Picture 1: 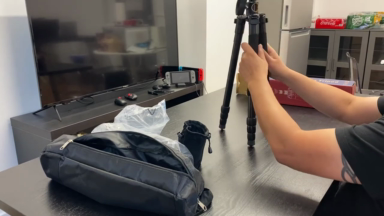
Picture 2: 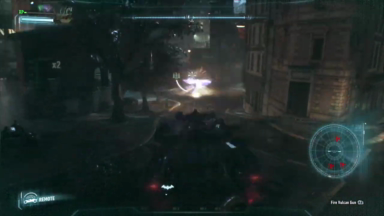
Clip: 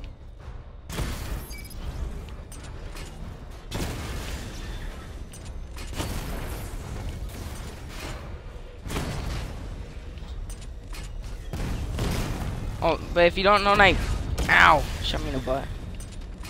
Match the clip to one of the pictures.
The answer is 2